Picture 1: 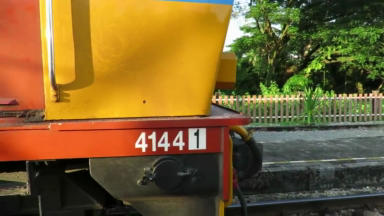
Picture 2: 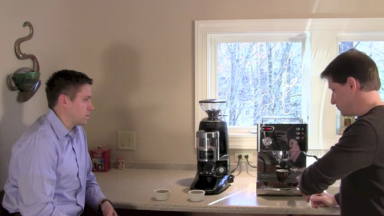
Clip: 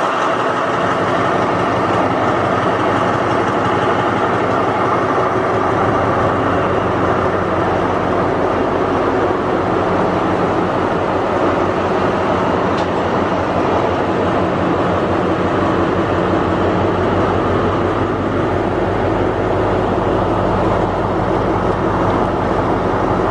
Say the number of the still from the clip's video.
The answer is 1